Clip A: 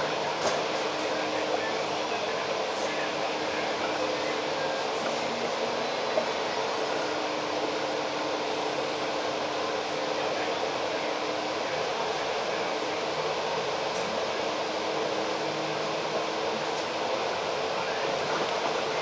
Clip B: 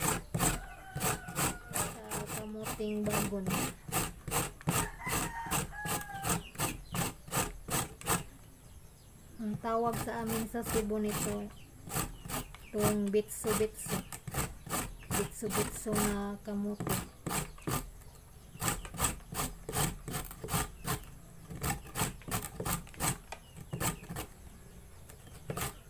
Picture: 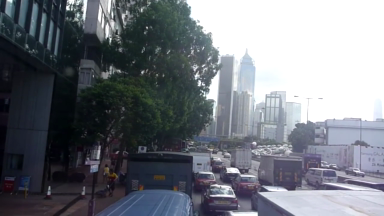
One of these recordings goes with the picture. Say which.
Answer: A